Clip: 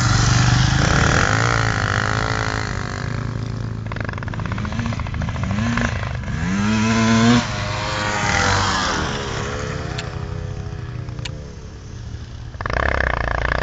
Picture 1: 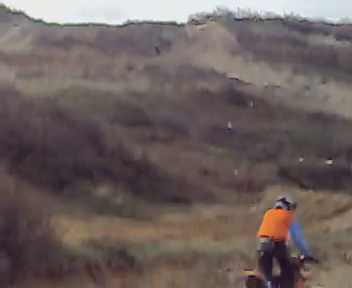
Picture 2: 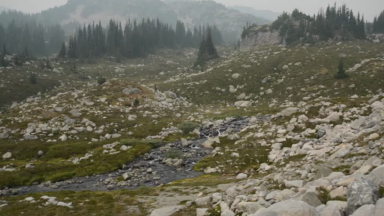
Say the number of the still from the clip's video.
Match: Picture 1